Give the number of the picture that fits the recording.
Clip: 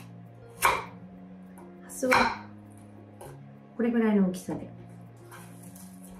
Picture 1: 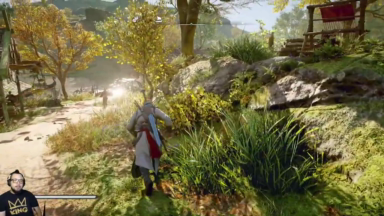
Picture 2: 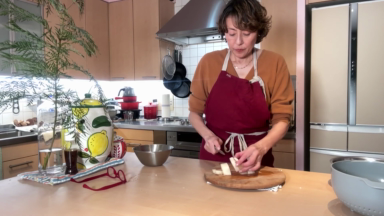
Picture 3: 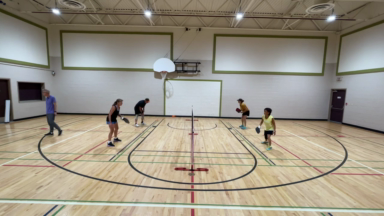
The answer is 2